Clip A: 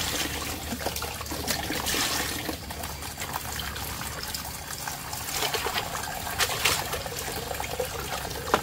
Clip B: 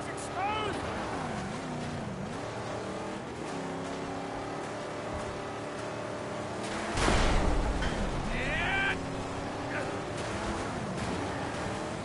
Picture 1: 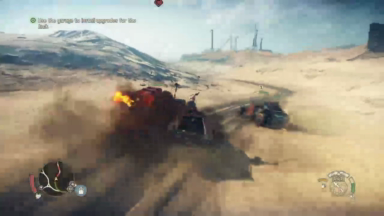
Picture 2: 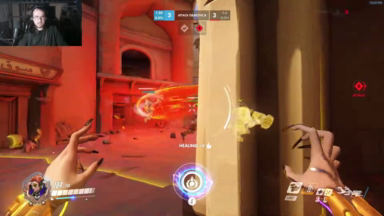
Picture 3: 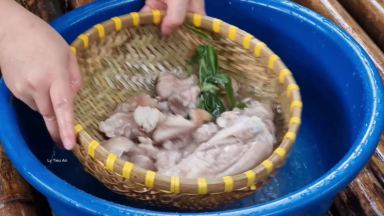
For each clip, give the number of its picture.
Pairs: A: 3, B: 1